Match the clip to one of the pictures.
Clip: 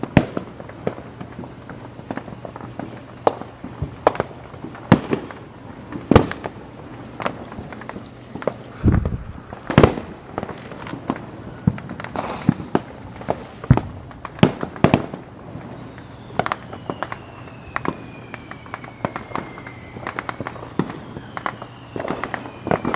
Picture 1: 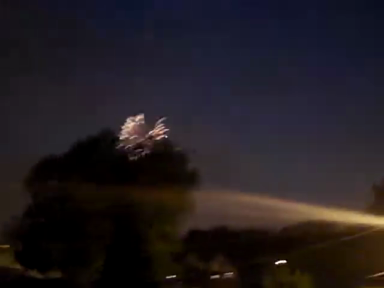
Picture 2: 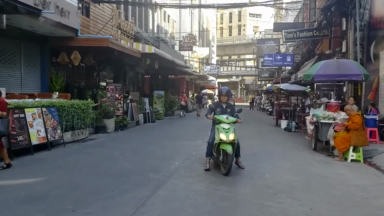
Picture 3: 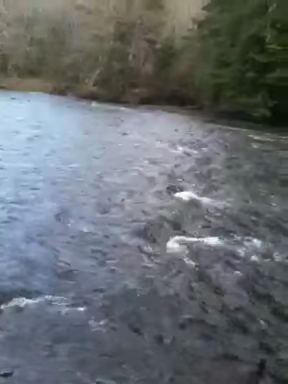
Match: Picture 1